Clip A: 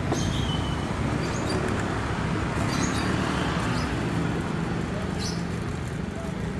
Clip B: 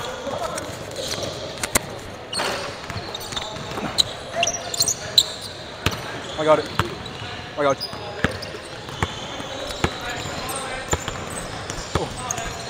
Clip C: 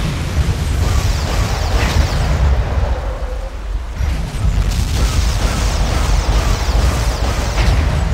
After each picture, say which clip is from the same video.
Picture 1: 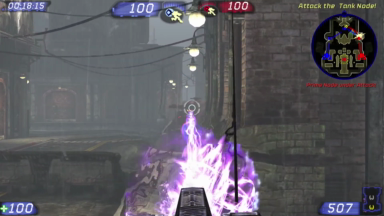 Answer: C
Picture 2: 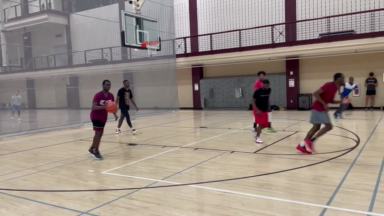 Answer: B